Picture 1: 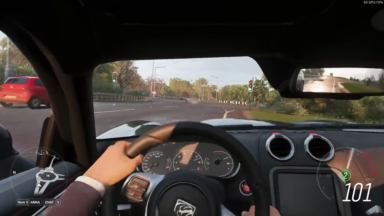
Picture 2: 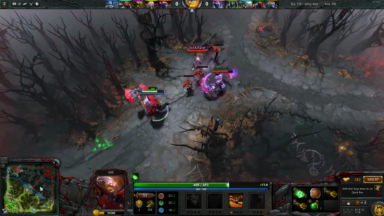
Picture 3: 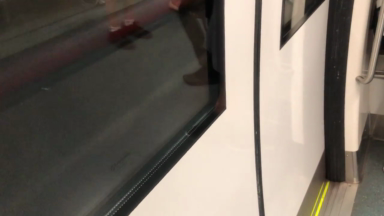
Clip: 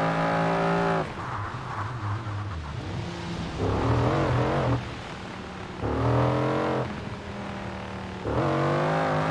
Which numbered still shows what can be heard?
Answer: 1